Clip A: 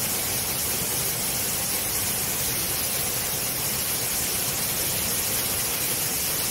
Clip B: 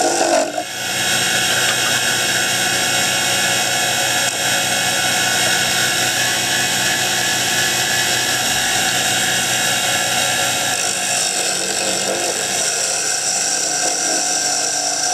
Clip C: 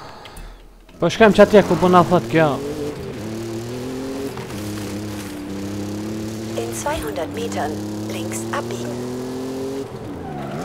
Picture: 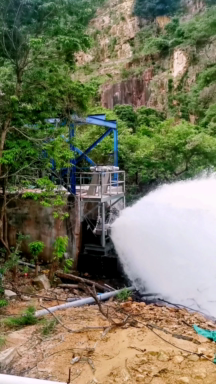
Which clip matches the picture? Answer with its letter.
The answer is A